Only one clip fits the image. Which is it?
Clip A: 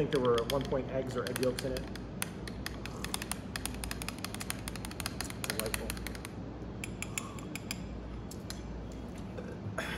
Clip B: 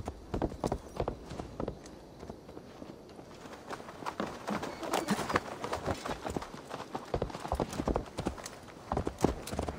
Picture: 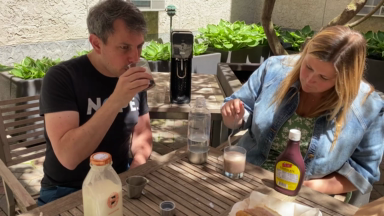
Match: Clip A